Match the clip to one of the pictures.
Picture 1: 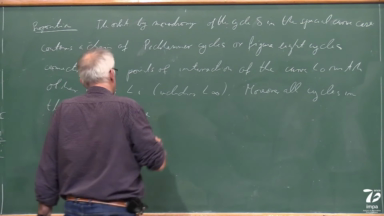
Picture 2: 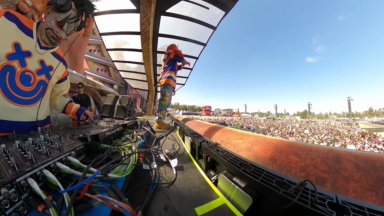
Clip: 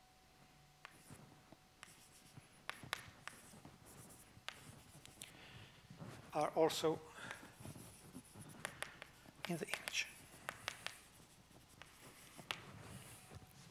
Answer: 1